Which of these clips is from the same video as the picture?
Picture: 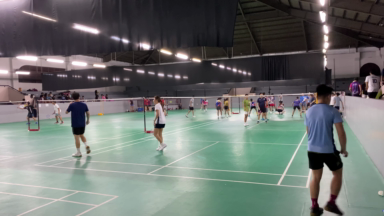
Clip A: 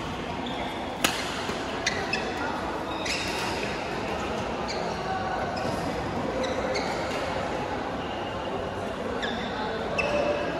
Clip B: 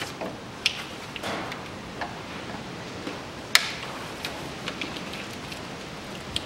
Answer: A